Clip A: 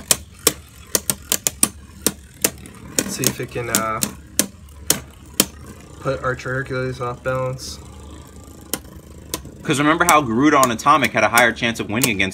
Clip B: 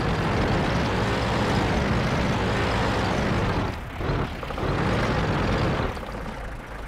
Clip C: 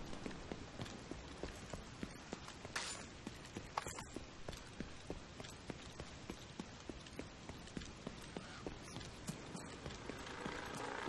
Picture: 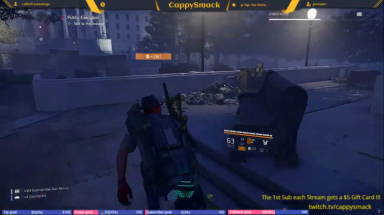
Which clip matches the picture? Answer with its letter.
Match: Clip C